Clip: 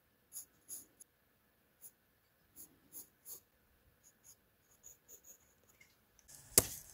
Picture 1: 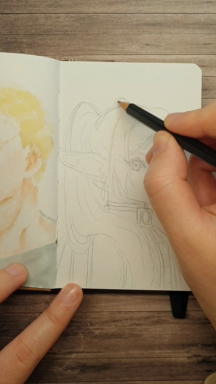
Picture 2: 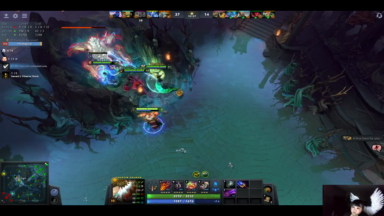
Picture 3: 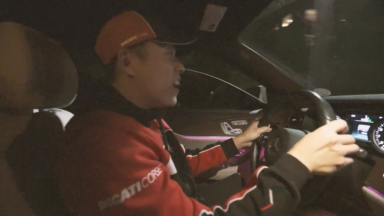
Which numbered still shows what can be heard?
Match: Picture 1